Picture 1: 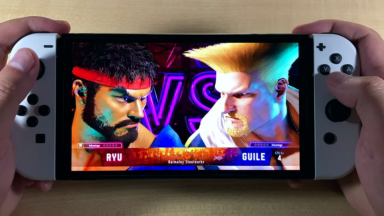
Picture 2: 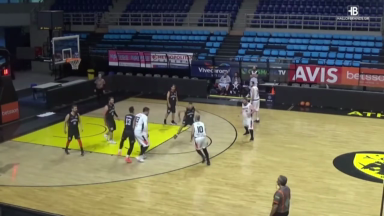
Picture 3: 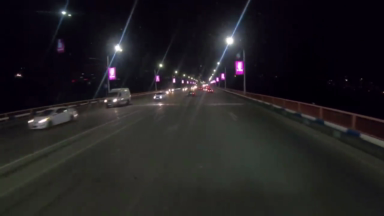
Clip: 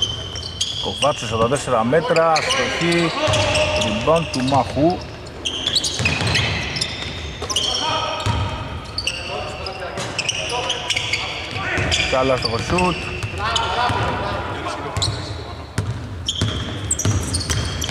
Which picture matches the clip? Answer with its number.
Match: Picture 2